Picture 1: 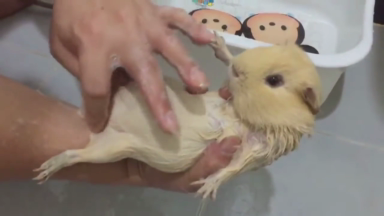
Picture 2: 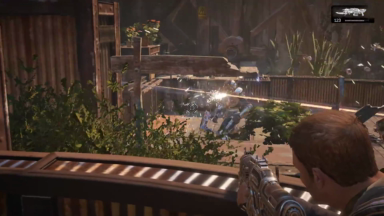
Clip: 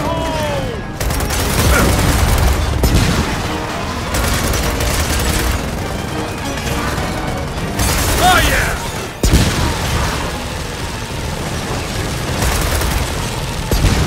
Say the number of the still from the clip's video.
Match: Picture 2